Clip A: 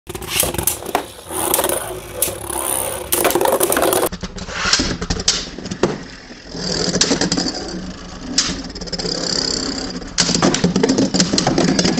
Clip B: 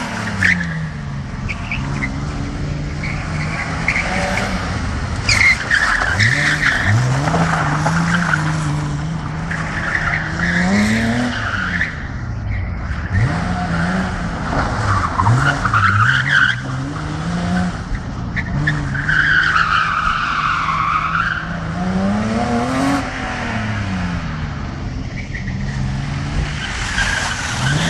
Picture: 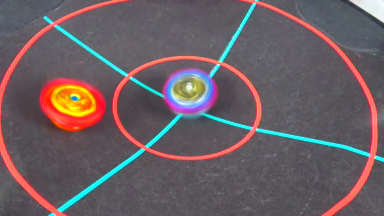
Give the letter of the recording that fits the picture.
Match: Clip A